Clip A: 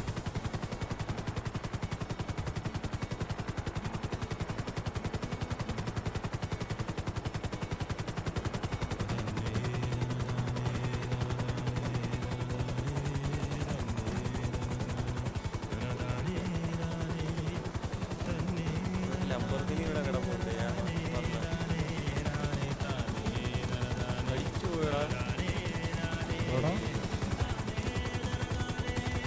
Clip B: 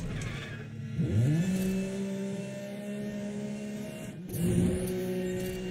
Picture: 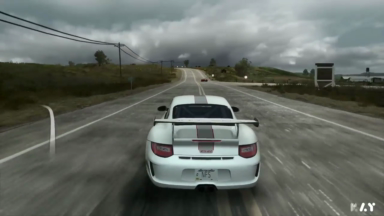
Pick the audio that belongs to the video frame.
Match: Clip B